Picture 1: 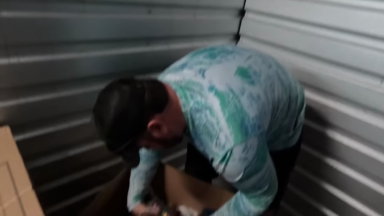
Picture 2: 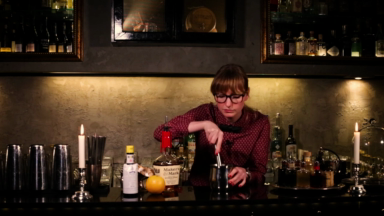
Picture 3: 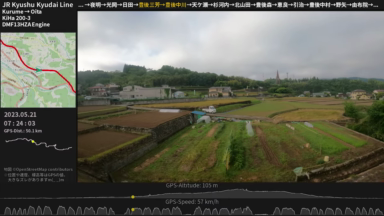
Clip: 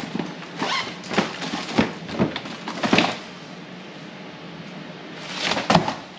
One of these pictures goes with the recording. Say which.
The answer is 1